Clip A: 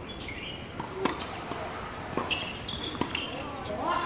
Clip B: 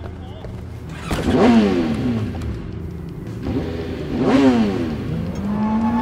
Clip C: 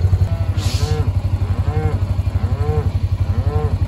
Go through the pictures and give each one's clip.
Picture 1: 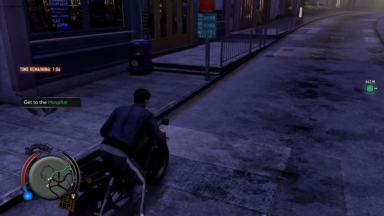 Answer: B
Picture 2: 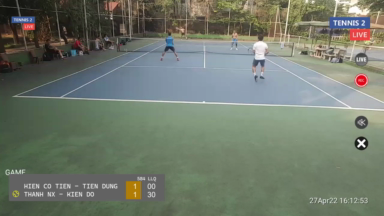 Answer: A